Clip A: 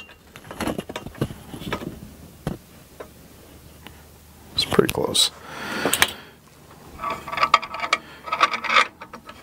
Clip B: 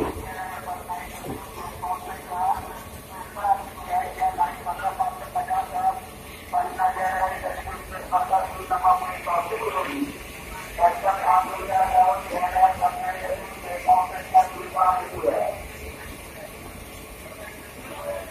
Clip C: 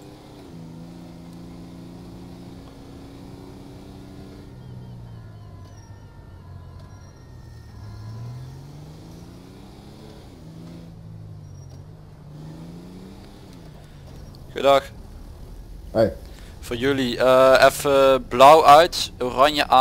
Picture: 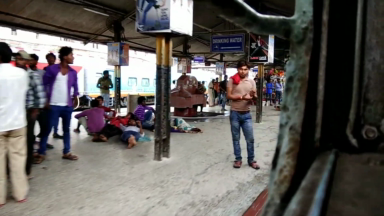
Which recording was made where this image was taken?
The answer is B